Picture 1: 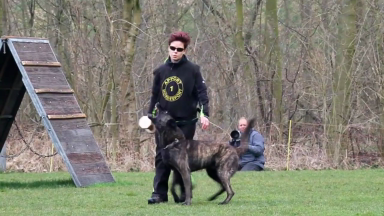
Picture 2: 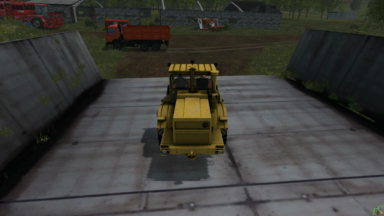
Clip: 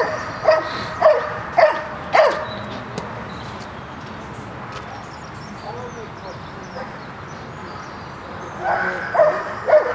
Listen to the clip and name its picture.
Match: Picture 1